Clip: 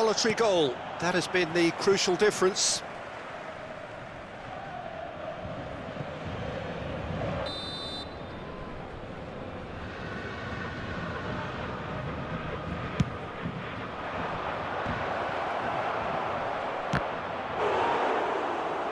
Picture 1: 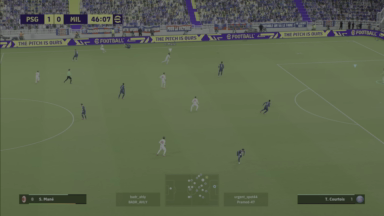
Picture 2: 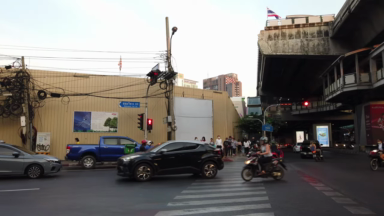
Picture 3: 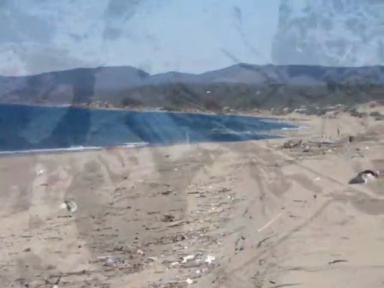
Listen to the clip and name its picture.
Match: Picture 1